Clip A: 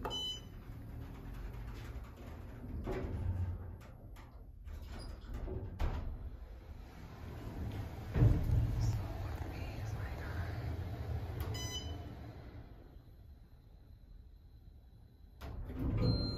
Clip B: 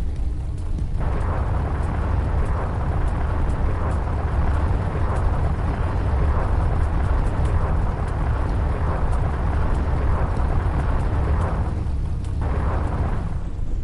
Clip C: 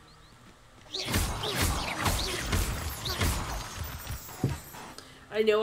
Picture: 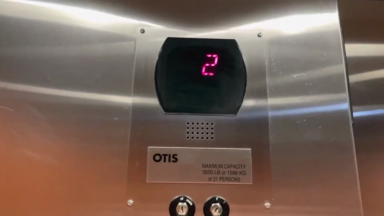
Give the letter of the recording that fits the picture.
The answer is A